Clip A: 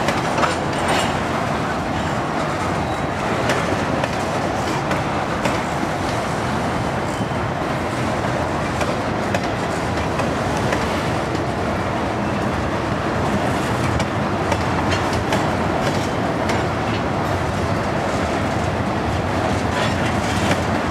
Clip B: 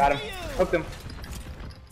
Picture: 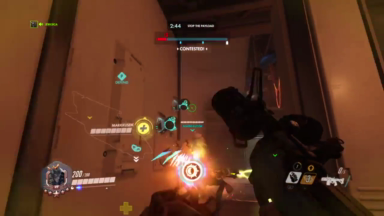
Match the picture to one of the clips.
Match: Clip B